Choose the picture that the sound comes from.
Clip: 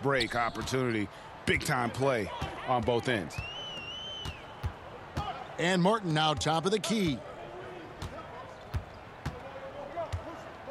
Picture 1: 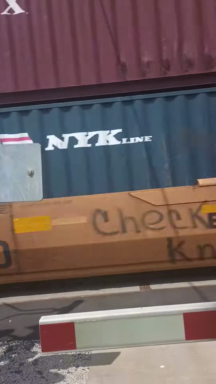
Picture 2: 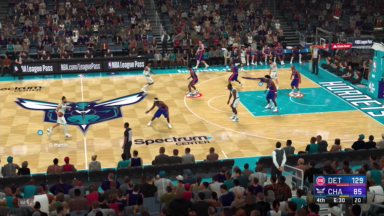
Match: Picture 2